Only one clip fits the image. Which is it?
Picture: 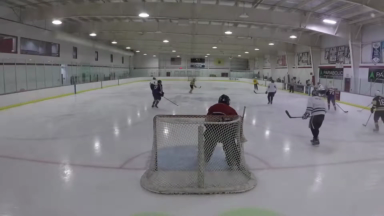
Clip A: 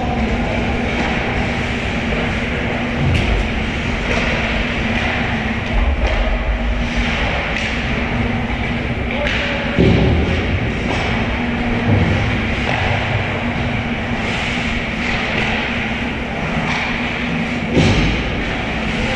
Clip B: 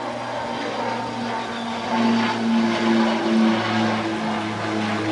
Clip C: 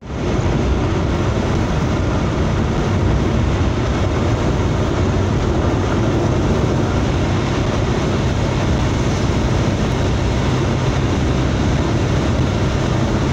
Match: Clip A